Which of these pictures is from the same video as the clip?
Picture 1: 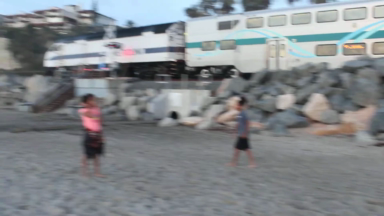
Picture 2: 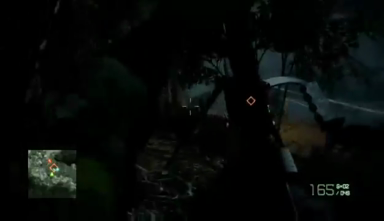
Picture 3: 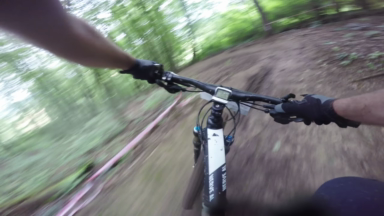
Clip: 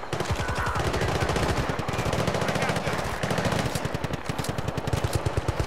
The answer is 2